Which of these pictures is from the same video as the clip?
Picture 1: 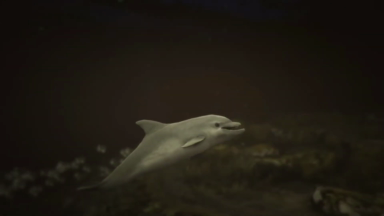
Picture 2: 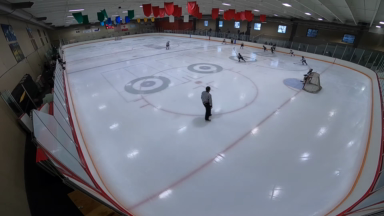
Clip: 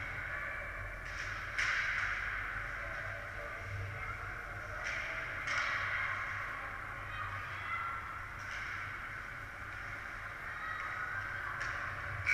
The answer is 2